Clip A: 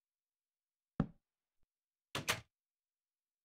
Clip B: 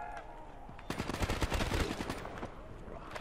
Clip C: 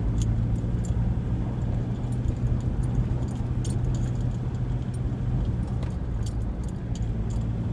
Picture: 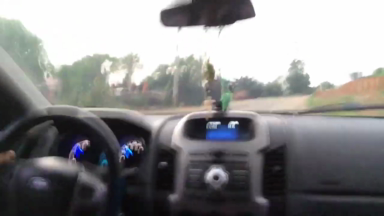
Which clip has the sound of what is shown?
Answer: C